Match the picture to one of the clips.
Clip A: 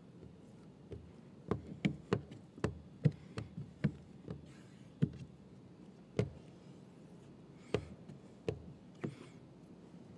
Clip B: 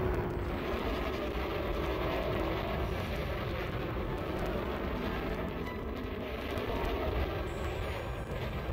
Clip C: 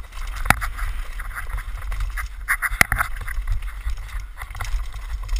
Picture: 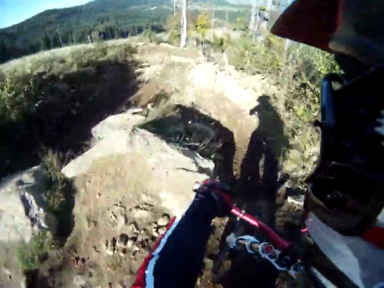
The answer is C